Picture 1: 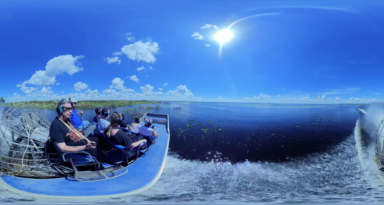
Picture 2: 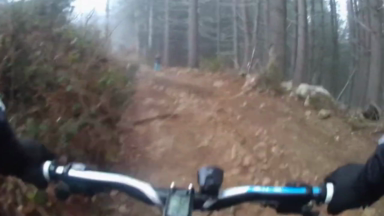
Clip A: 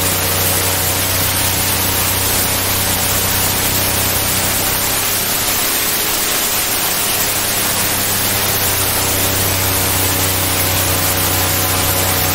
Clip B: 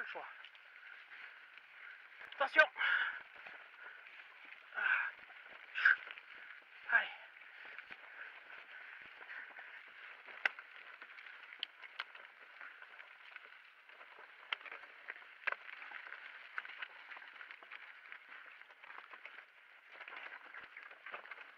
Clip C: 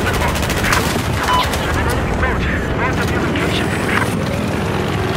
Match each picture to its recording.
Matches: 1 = A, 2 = B